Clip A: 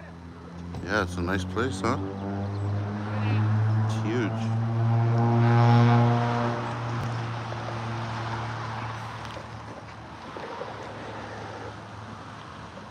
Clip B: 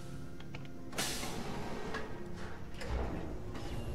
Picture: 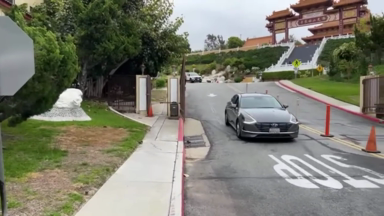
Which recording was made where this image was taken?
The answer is A